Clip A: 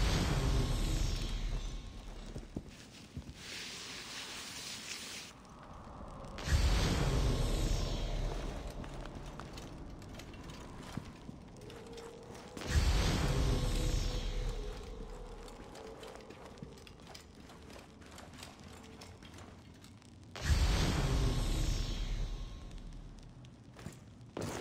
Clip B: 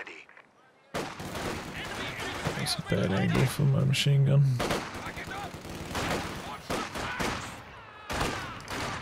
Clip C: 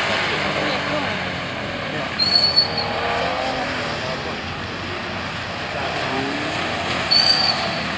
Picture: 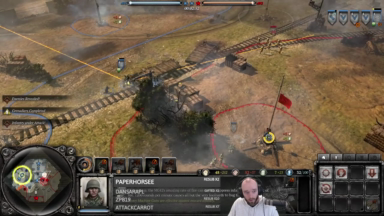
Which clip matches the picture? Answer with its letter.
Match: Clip B